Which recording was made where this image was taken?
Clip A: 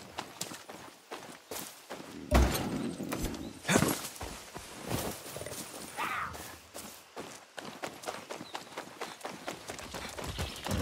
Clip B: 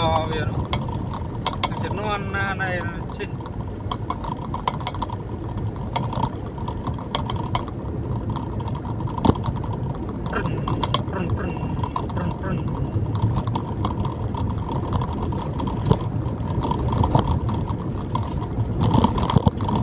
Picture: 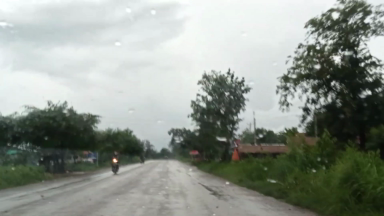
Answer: B